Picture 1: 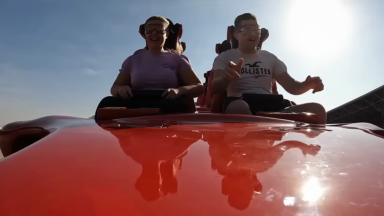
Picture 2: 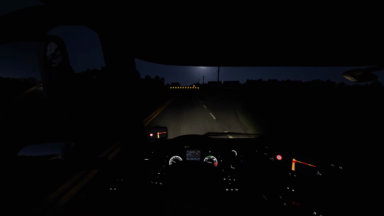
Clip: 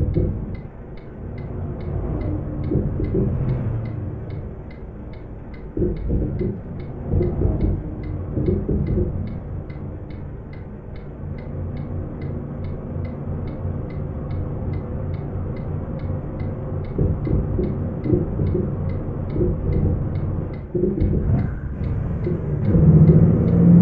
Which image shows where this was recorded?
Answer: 2